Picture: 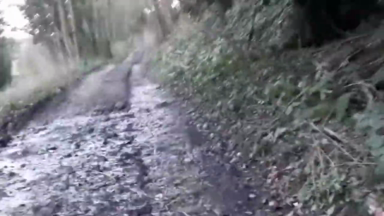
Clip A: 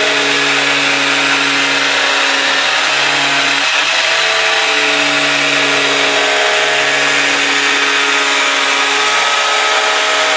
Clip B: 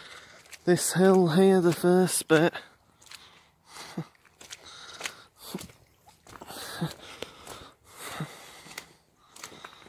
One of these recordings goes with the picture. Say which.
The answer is B